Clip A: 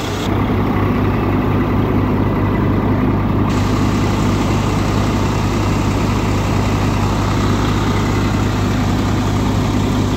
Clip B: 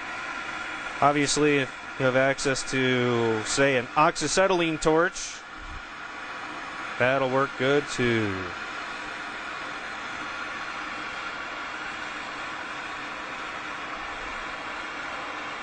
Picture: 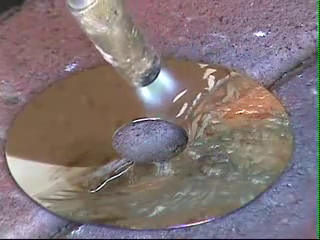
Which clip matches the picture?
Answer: B